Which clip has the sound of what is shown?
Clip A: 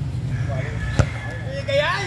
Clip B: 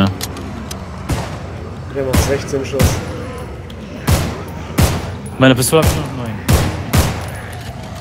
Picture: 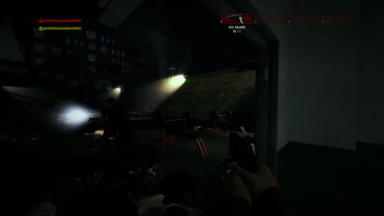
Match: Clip B